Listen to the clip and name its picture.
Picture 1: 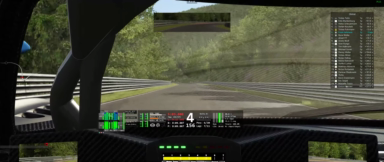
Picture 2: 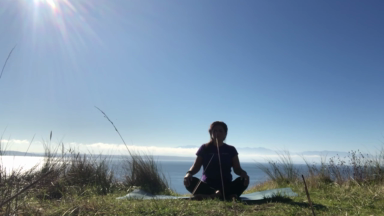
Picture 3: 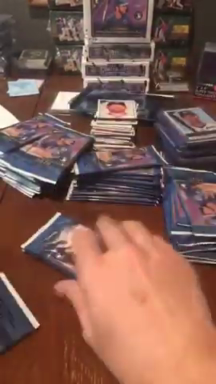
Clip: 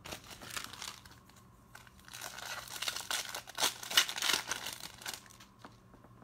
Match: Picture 3